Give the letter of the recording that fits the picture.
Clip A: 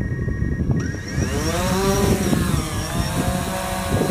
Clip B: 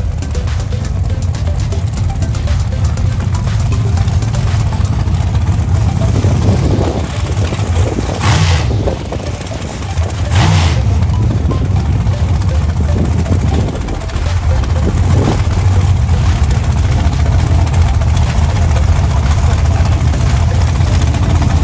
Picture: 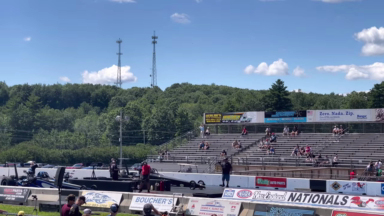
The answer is B